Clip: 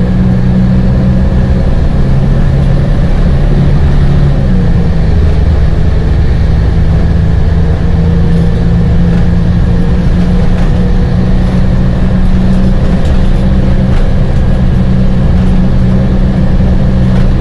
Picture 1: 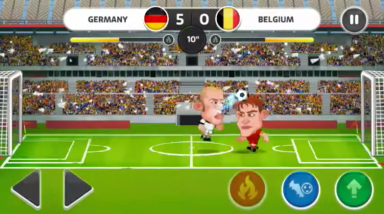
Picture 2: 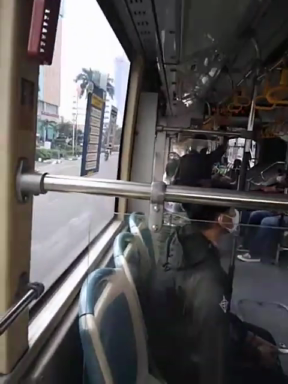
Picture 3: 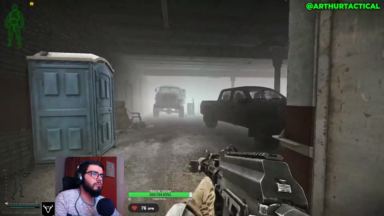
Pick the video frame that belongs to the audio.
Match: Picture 2